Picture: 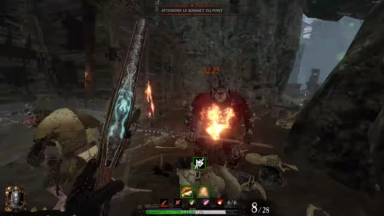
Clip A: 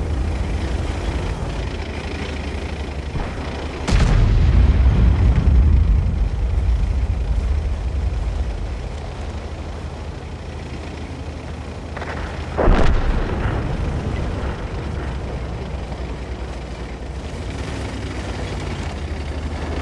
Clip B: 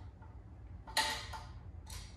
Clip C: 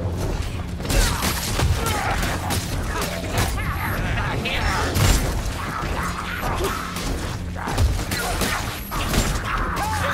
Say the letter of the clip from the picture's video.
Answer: C